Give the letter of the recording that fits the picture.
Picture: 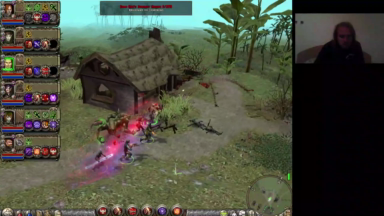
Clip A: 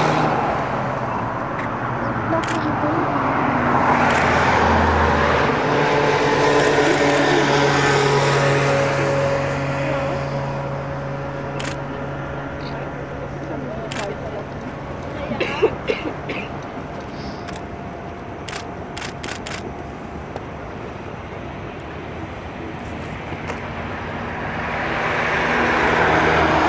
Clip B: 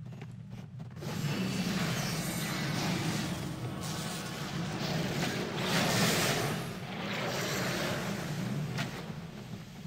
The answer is B